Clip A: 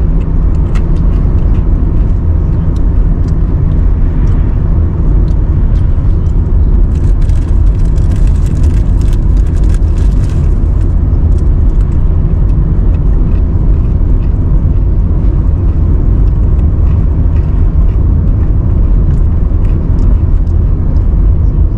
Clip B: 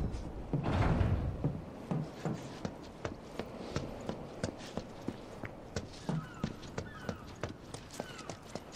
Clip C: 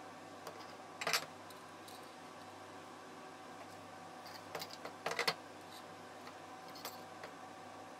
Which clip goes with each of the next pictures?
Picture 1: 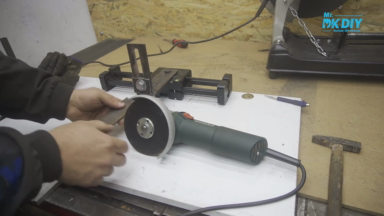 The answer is C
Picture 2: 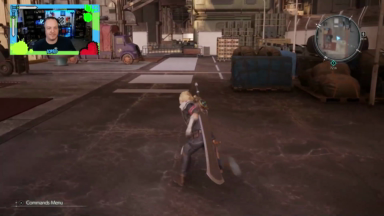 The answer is B